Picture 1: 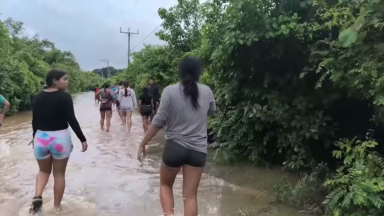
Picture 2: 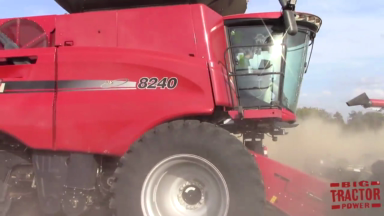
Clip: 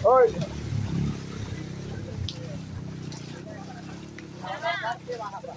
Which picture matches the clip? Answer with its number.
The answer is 1